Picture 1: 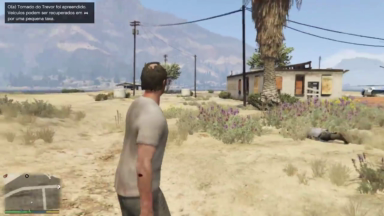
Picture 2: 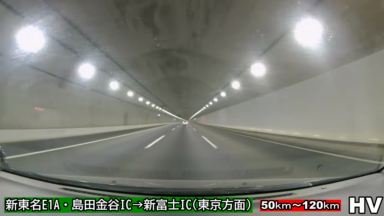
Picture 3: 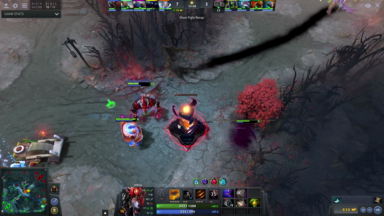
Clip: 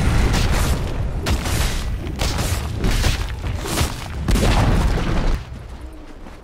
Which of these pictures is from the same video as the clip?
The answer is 3